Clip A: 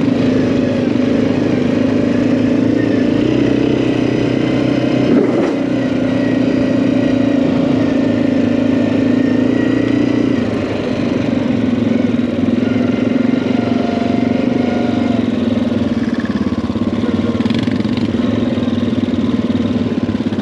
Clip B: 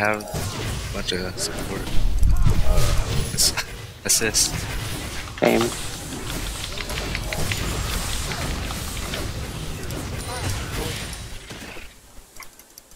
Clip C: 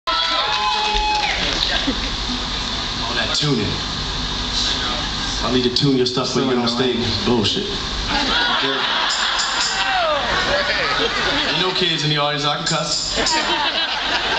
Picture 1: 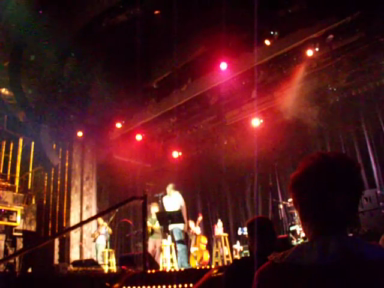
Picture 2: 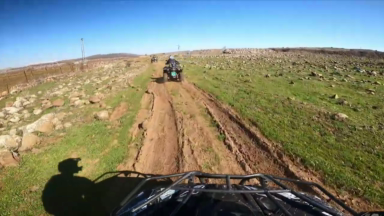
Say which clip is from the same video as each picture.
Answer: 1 C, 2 A